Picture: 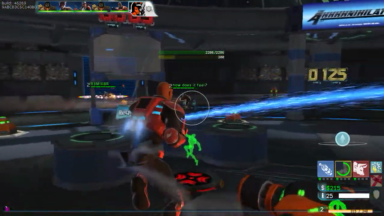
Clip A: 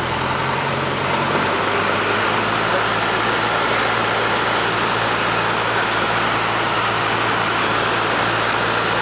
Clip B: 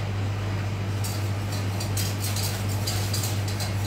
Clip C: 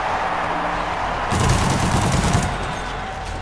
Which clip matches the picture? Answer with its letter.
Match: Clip C